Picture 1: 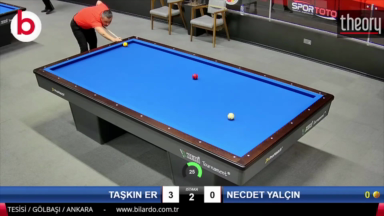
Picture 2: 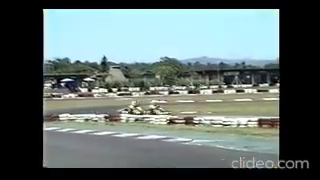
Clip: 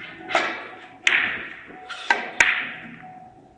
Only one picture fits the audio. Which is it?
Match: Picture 1